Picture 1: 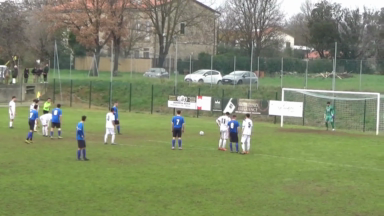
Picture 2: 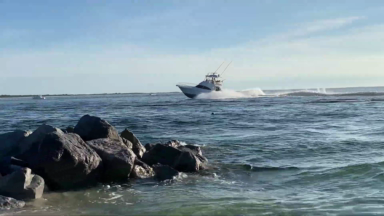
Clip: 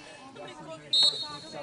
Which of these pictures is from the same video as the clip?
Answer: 1